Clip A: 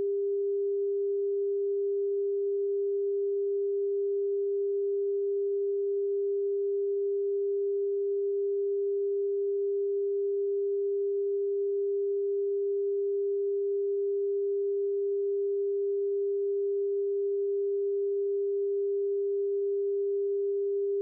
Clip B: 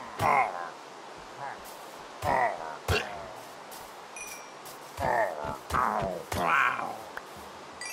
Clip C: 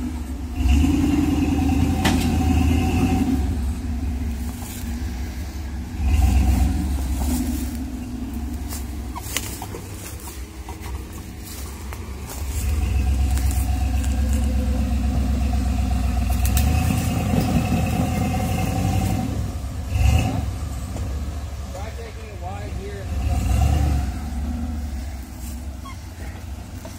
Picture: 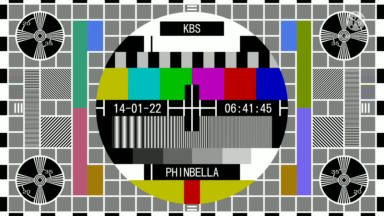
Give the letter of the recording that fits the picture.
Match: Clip A